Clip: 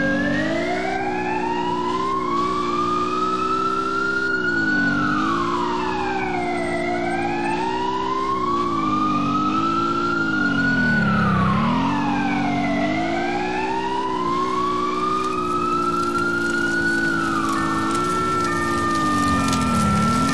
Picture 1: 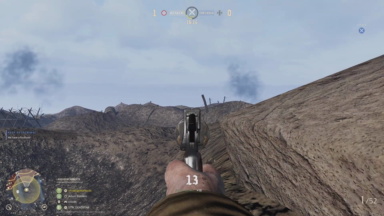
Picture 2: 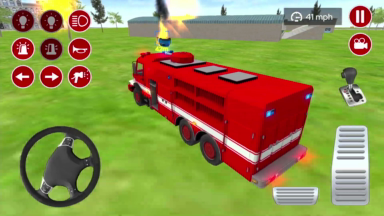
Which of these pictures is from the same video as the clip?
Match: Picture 2